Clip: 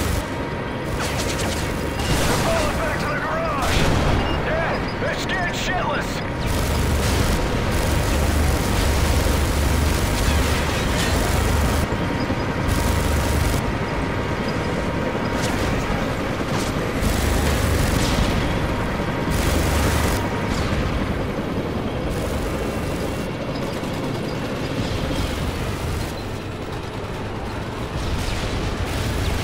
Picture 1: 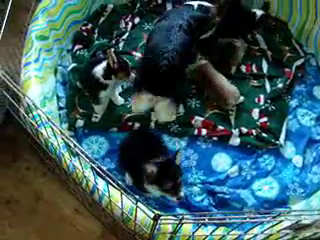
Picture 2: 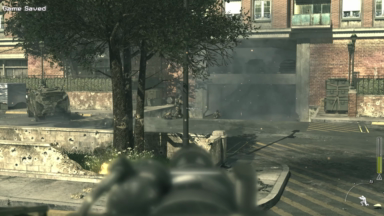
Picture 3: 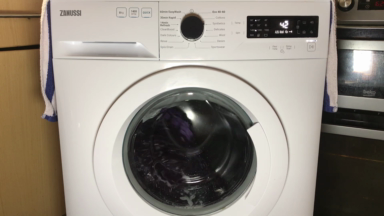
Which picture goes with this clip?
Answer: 2